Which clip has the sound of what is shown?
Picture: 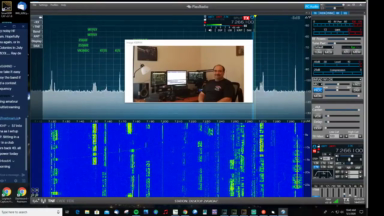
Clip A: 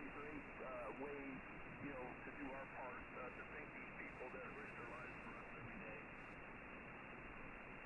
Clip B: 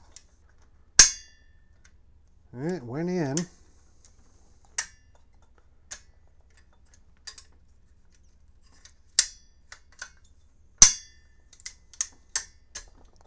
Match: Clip A